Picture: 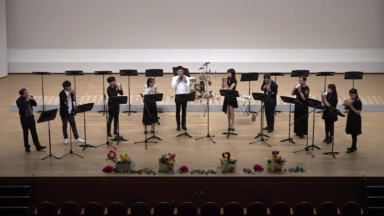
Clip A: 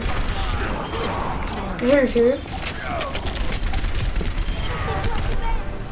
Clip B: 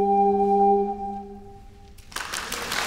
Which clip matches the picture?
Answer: B